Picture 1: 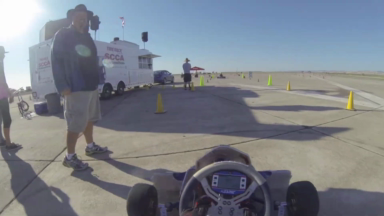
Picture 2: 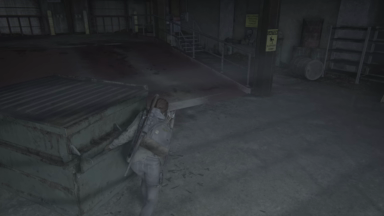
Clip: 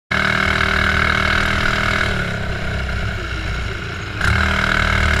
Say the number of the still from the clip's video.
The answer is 1